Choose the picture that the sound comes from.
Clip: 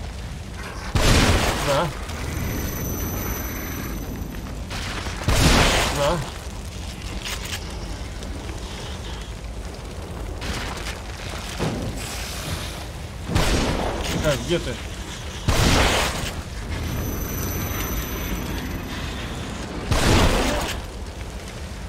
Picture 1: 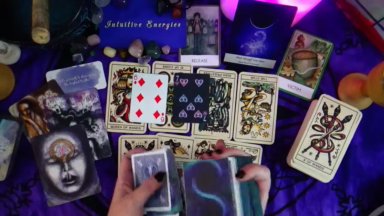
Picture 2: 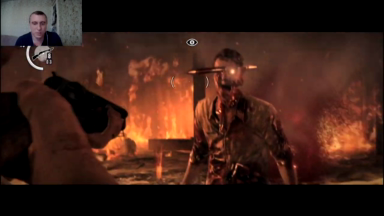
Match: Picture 2